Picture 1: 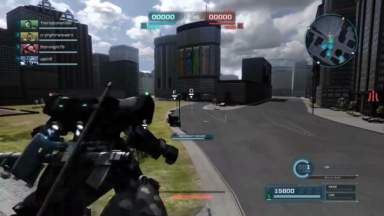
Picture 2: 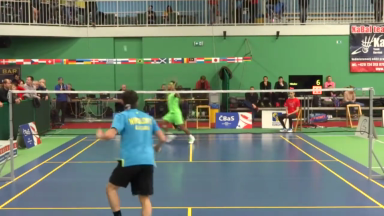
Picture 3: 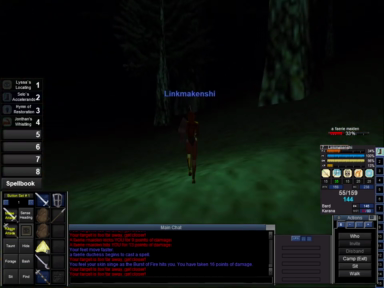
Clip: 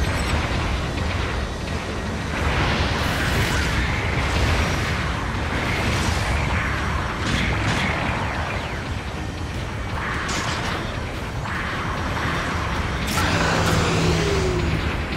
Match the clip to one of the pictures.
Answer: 1